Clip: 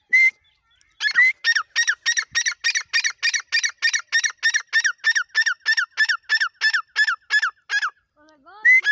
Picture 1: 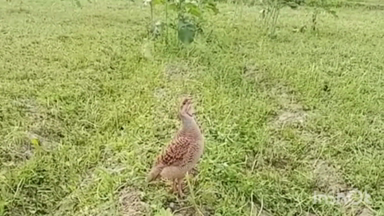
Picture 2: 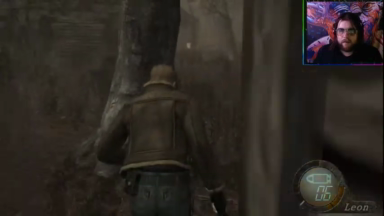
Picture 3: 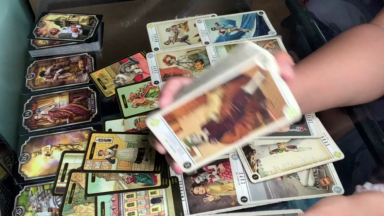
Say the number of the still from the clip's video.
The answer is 1